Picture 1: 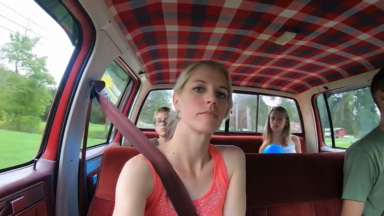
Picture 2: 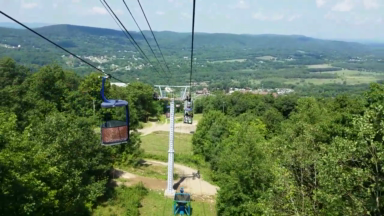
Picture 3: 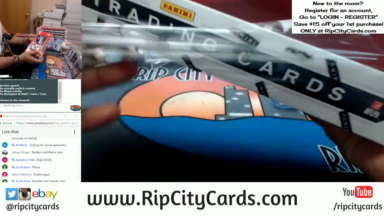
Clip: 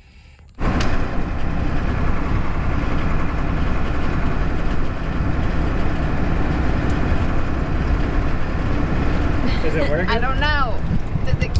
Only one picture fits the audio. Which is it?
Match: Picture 1